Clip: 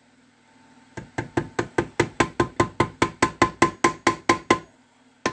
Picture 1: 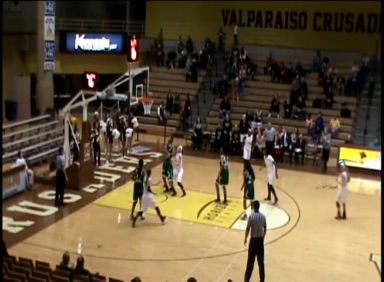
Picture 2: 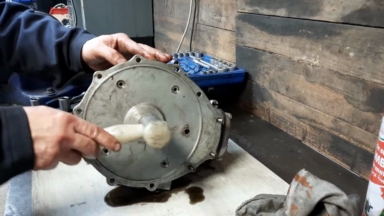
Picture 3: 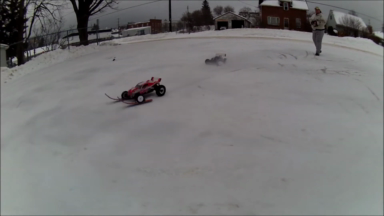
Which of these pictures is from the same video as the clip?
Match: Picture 2